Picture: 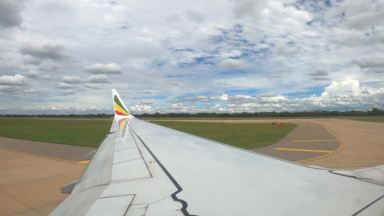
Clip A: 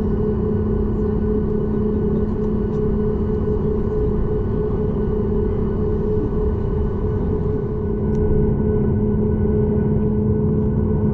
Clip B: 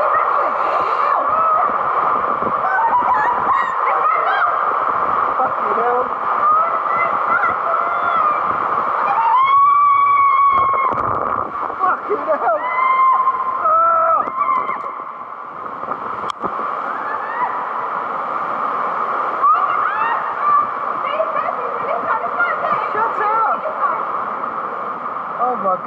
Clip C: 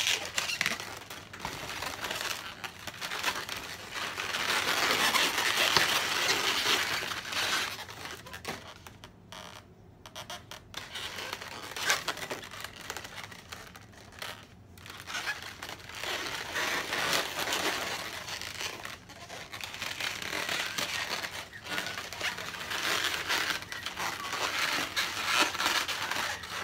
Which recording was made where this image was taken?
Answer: A